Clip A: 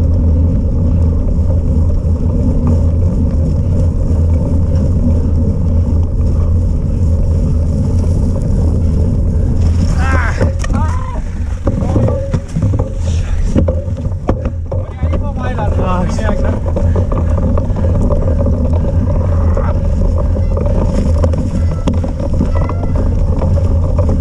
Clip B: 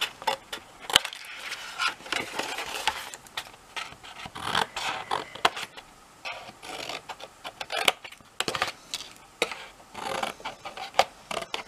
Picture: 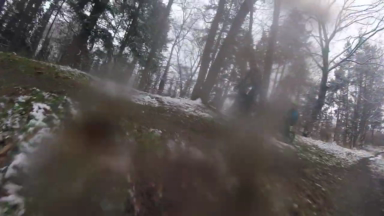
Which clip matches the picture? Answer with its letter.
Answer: A